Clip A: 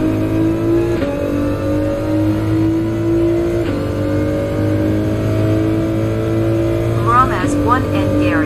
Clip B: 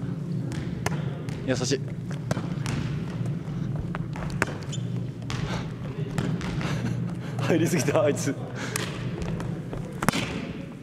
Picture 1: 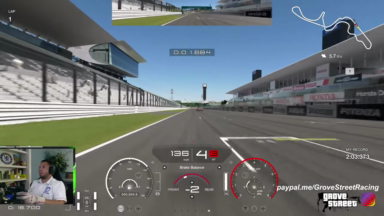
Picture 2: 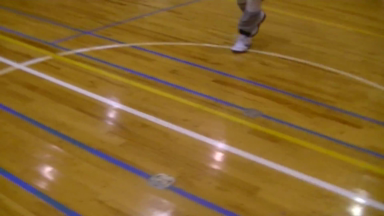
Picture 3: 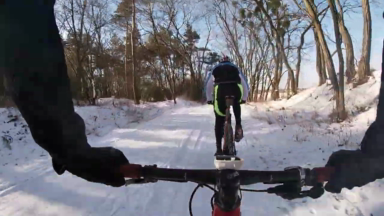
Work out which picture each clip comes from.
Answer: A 1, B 2